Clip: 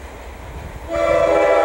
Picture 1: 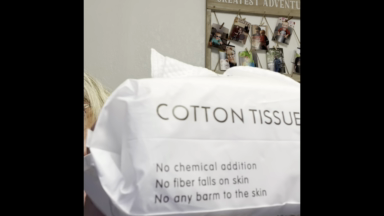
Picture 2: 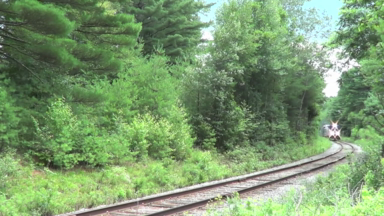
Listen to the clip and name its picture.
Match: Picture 2